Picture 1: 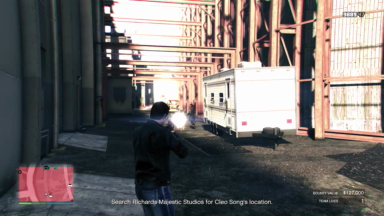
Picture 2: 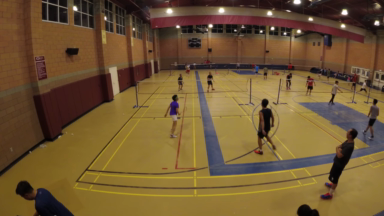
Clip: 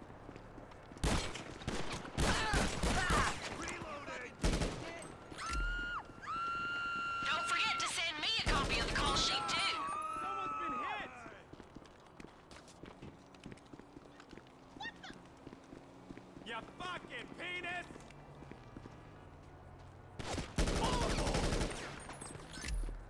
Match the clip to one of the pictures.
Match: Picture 1